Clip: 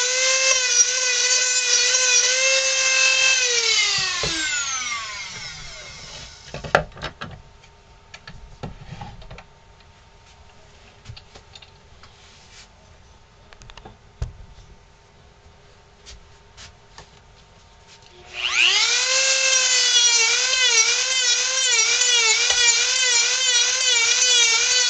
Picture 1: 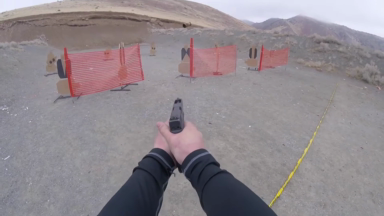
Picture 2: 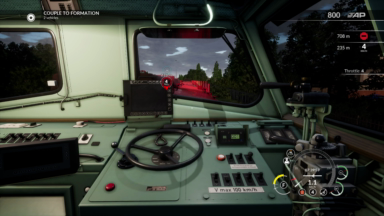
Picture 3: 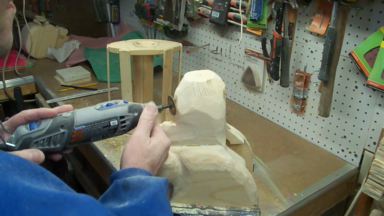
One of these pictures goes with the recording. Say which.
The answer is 3